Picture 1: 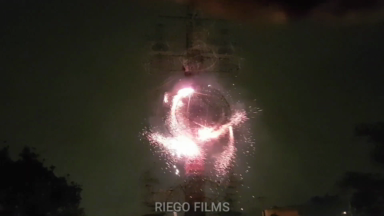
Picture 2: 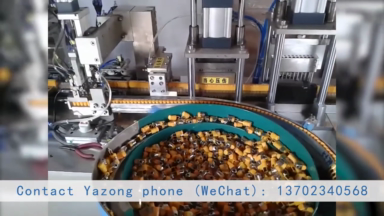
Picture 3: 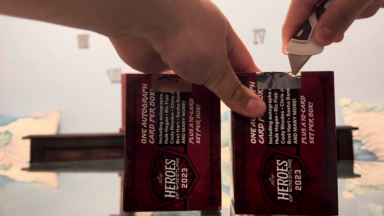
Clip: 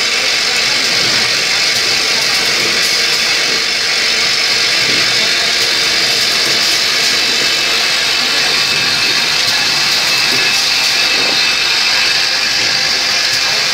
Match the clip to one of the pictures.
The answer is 2